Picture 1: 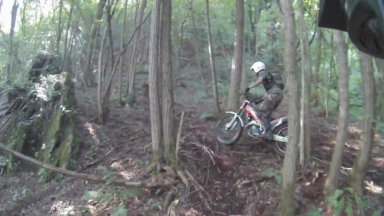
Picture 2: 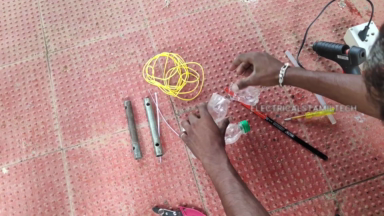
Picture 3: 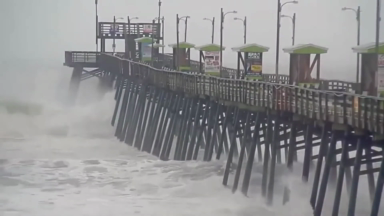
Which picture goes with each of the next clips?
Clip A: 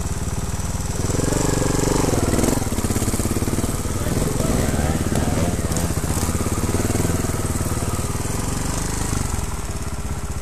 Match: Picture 1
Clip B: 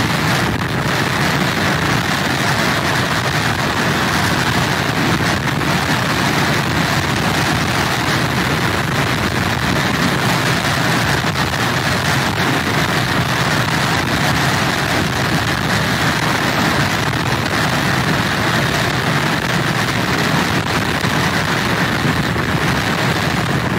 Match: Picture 3